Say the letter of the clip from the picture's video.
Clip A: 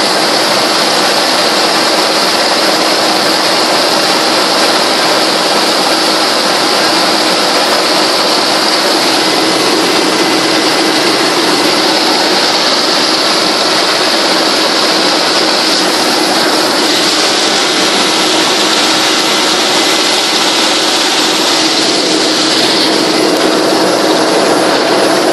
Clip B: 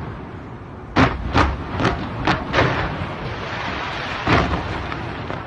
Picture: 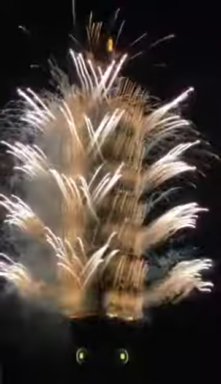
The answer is B